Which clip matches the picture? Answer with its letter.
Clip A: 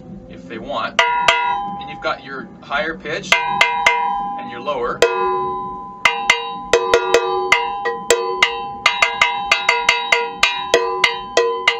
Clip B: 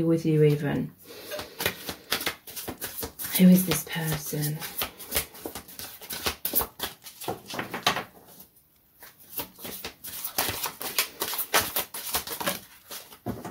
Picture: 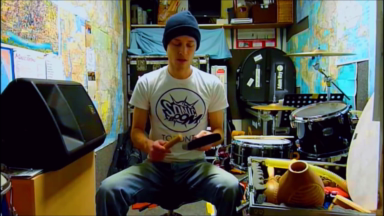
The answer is A